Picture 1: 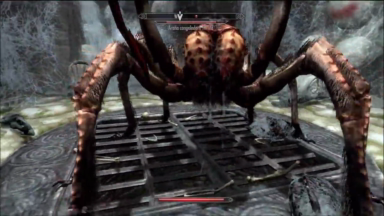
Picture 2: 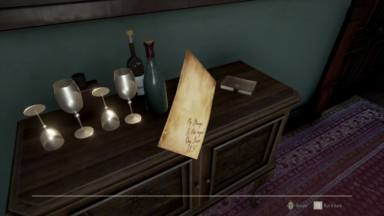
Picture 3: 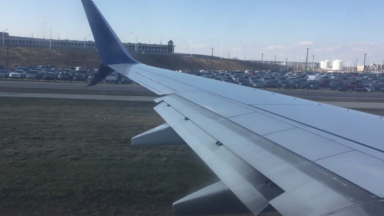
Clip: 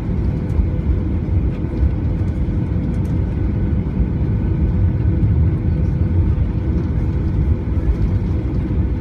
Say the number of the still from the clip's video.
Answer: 3